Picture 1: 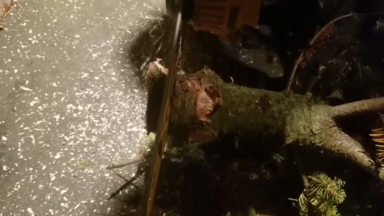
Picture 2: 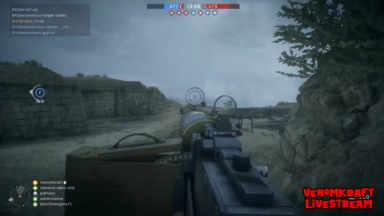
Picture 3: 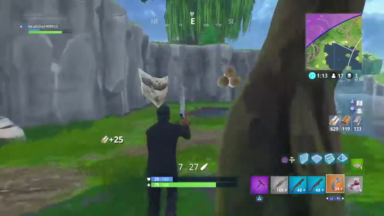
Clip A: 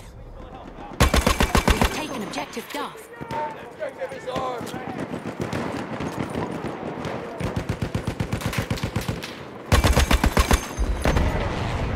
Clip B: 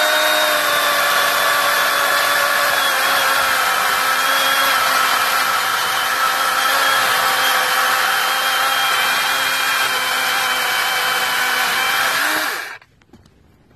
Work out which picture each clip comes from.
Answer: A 2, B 1